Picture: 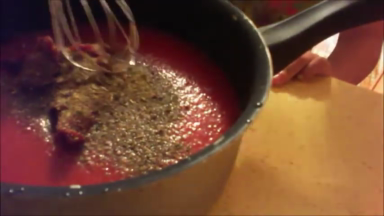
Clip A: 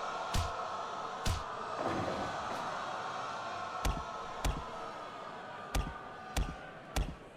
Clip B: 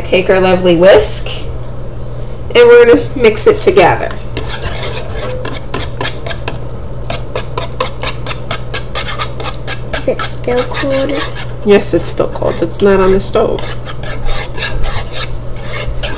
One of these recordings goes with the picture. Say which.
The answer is B